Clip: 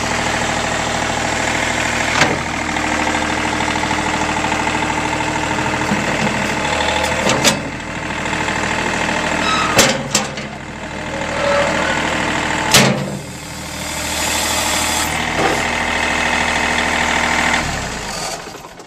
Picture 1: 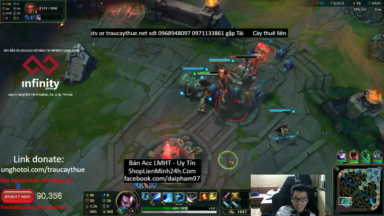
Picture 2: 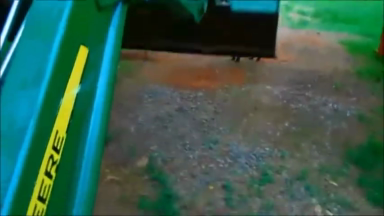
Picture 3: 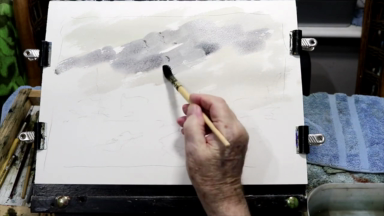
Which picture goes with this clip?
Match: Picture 2